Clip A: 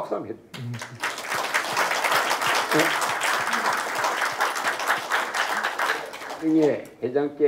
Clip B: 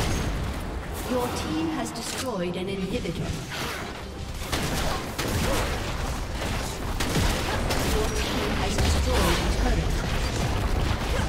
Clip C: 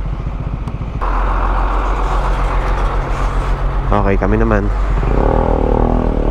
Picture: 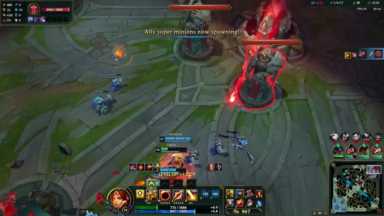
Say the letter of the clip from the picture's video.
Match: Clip B